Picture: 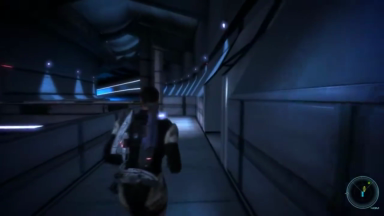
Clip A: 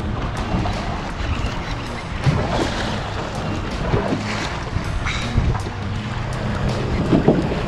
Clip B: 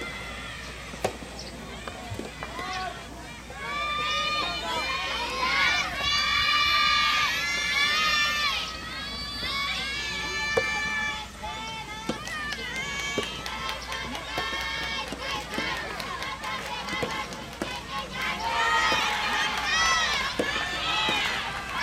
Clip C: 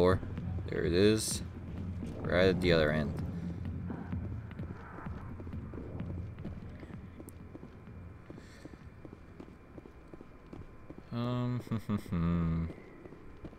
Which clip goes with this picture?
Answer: C